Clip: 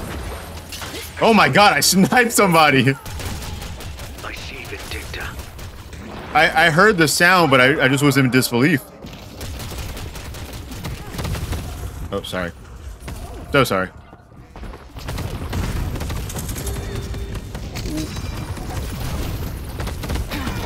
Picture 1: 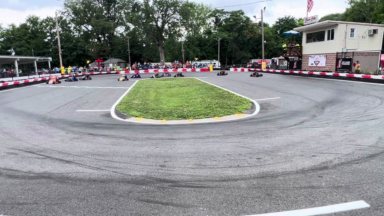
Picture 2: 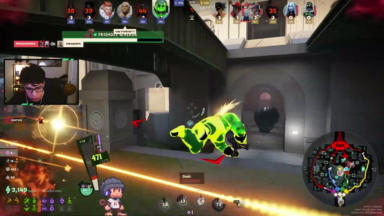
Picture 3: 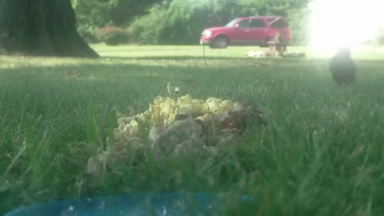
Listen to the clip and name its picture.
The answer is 2